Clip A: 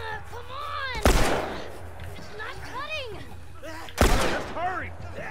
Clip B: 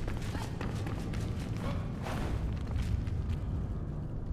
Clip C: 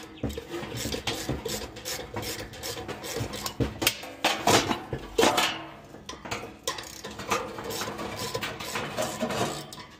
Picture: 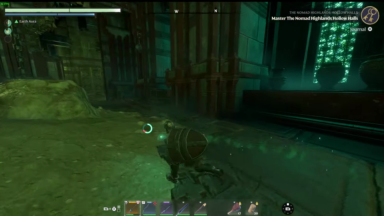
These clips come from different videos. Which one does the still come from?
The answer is B